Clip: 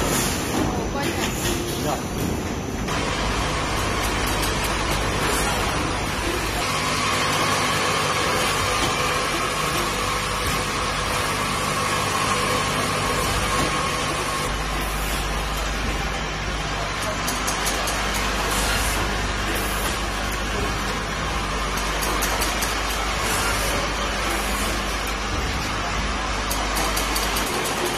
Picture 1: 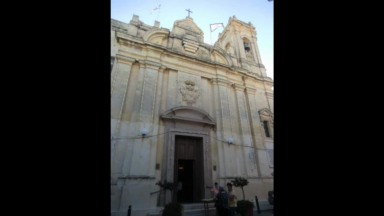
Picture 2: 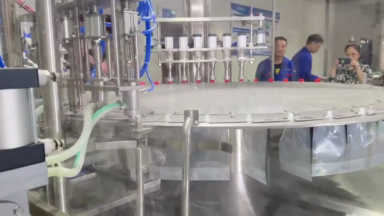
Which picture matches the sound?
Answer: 2